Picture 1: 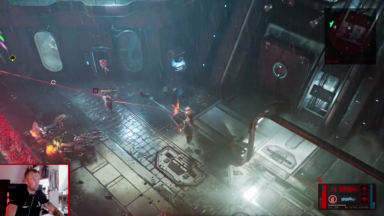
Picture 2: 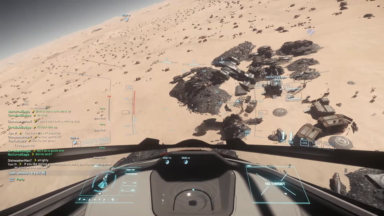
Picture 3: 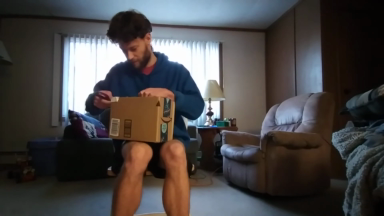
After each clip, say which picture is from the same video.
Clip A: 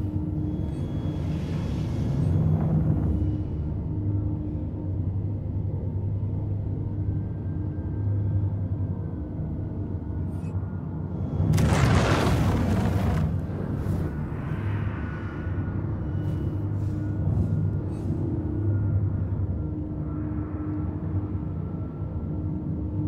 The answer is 2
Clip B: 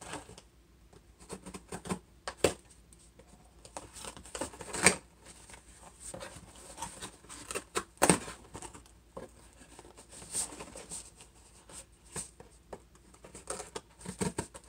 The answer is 3